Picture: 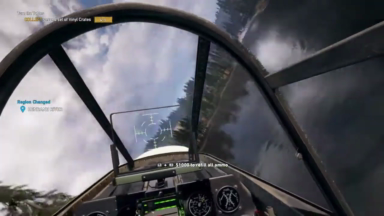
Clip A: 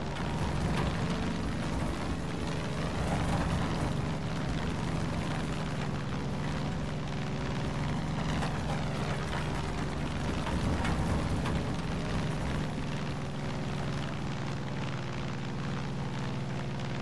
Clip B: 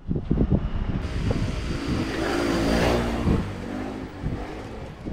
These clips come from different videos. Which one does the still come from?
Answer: A